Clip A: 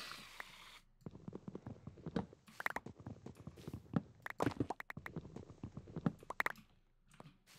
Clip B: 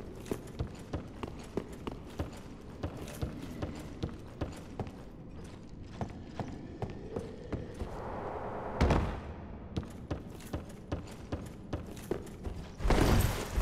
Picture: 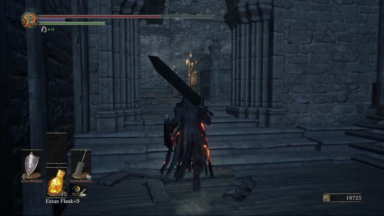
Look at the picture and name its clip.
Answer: B